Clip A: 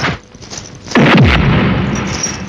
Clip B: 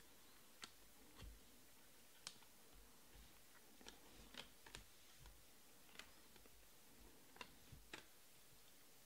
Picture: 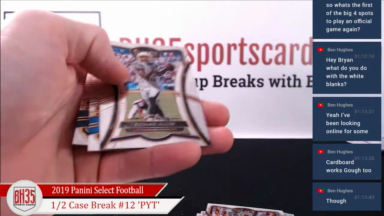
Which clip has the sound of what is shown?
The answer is B